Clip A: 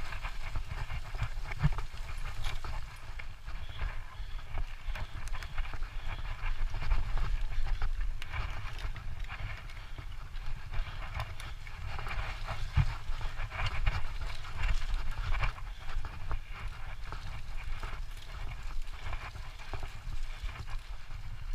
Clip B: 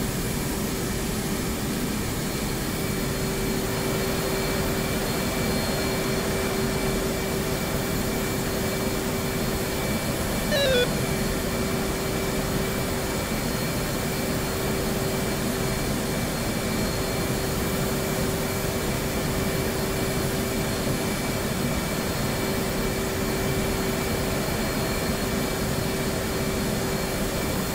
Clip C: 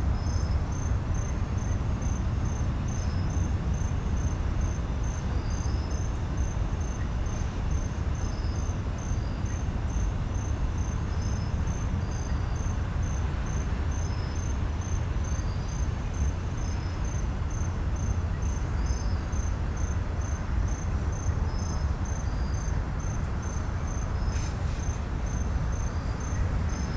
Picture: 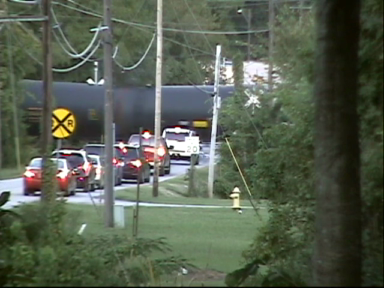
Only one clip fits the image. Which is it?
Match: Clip C